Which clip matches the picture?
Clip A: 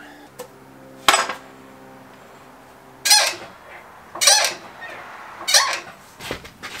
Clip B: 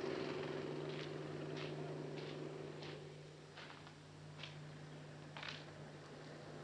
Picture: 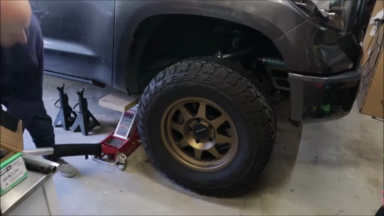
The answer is A